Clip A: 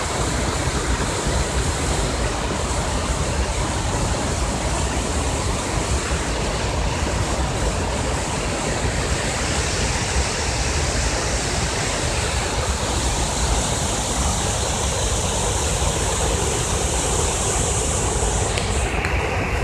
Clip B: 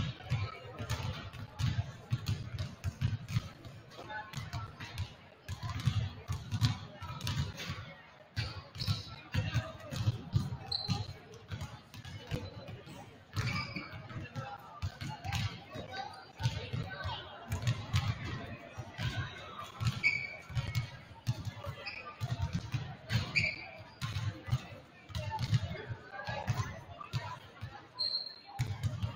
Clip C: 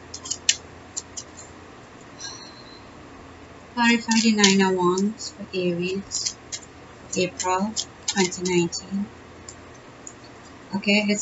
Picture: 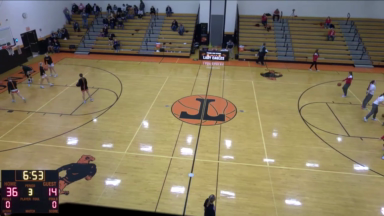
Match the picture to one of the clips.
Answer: B